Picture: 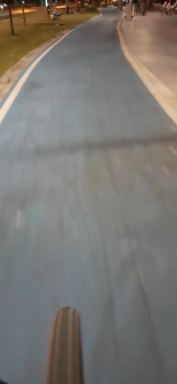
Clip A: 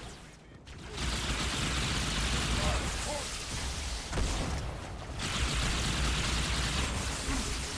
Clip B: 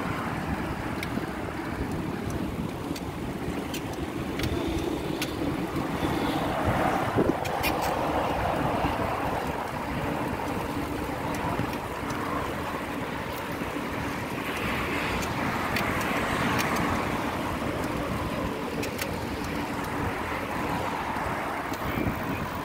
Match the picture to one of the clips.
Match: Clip B